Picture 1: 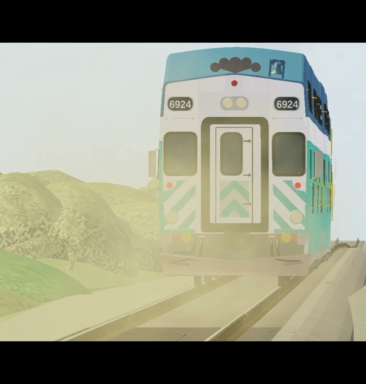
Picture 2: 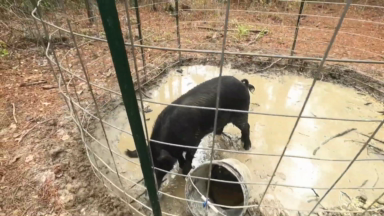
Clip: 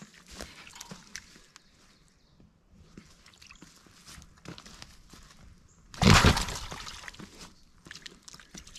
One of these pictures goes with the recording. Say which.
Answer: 2